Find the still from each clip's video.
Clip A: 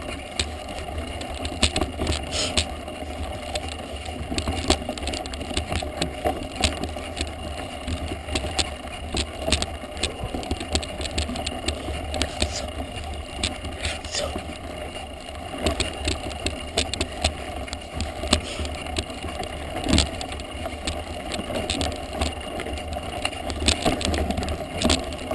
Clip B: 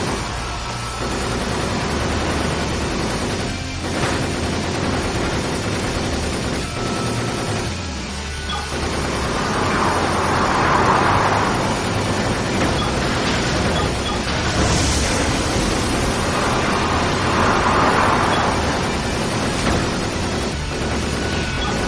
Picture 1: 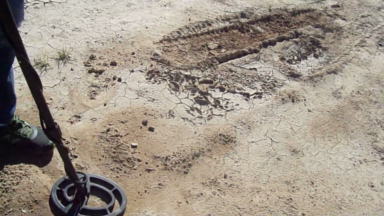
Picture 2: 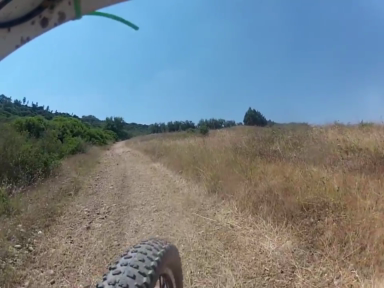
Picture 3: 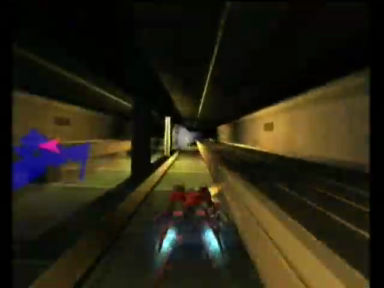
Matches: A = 2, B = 3